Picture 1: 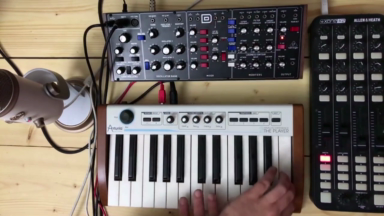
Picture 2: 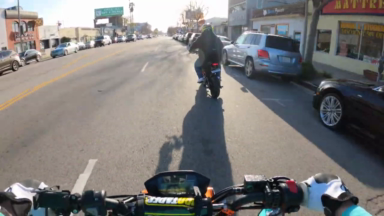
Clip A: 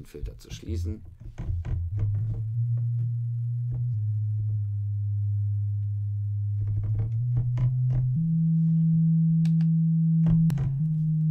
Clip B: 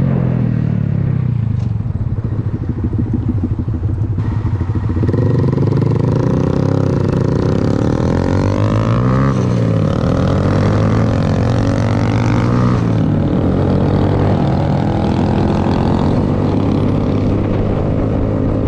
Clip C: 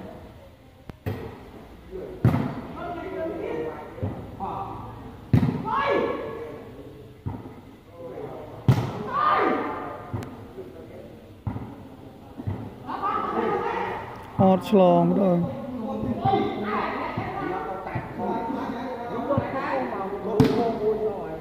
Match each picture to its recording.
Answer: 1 A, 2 B